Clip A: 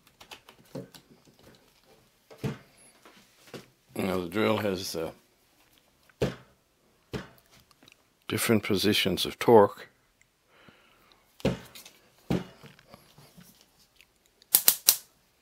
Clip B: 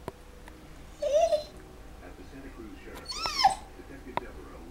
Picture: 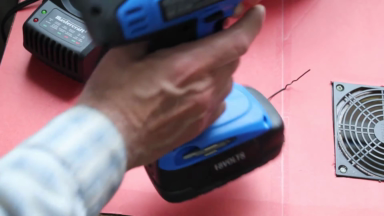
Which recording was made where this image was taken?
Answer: A